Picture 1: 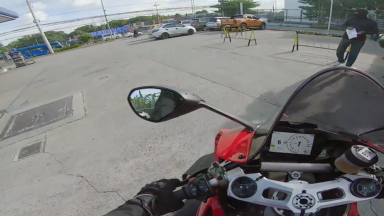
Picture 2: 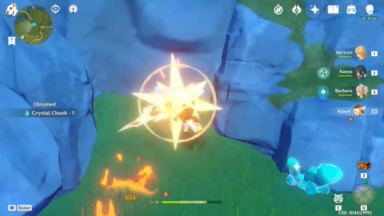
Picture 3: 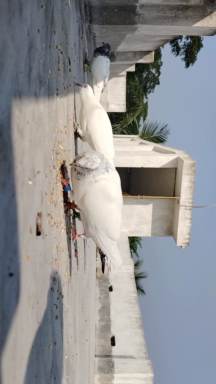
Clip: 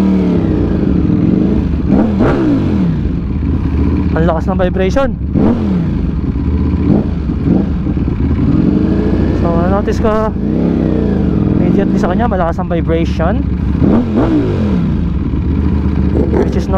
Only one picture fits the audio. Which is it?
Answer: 1